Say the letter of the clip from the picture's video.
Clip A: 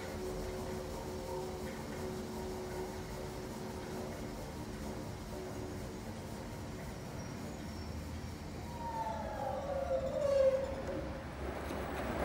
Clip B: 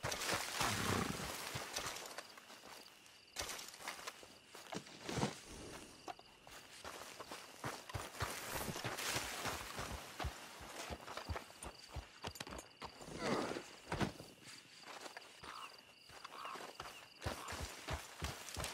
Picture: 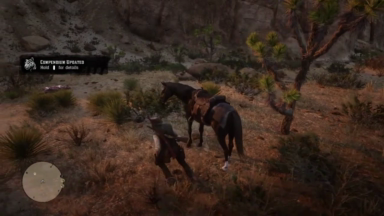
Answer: B